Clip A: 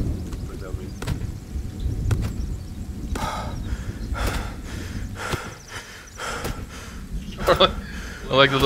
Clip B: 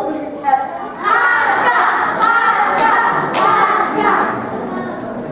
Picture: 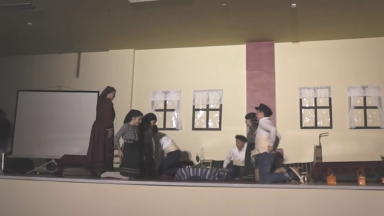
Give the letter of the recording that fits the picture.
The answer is B